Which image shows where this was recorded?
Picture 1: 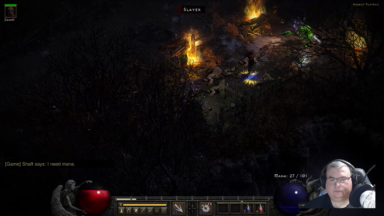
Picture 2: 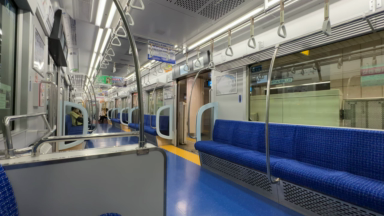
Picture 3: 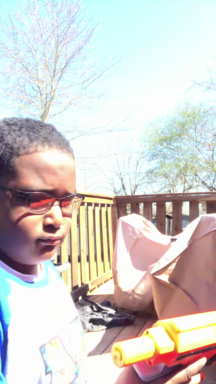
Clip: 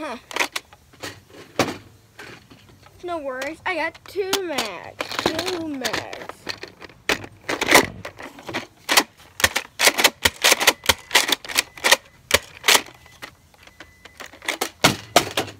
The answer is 3